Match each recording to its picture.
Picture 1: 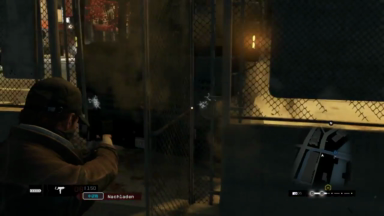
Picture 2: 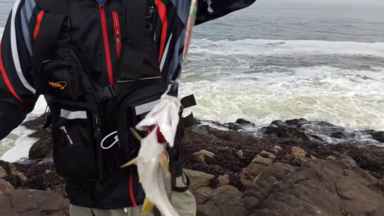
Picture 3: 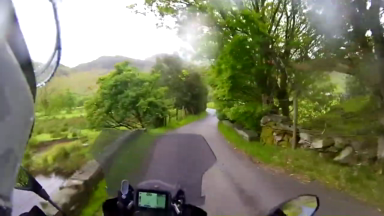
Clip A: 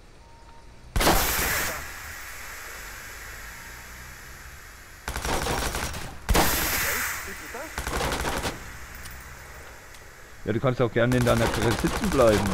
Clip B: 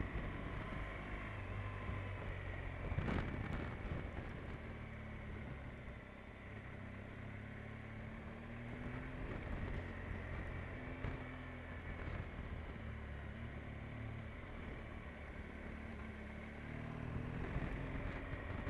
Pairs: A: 1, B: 3